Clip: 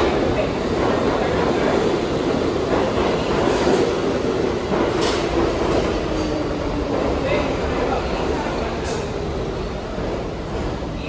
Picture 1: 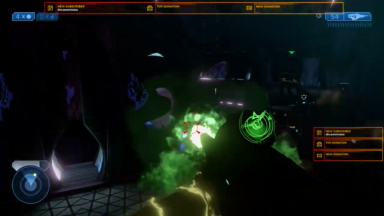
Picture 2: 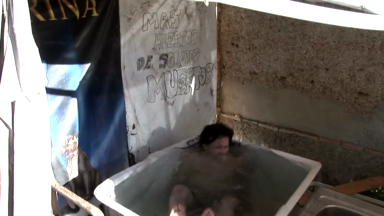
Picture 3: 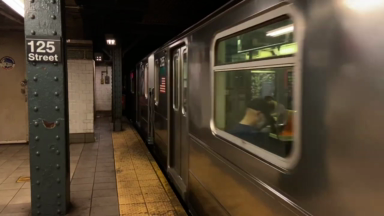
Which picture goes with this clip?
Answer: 3